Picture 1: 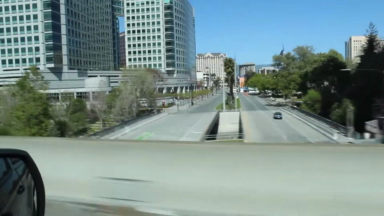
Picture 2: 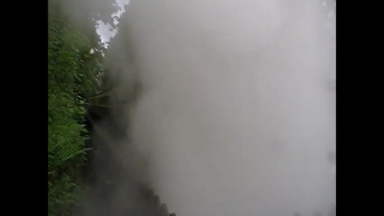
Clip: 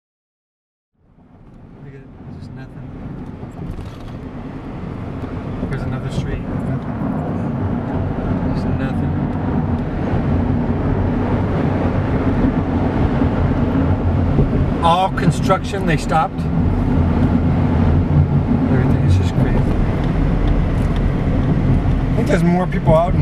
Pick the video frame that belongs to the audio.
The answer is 1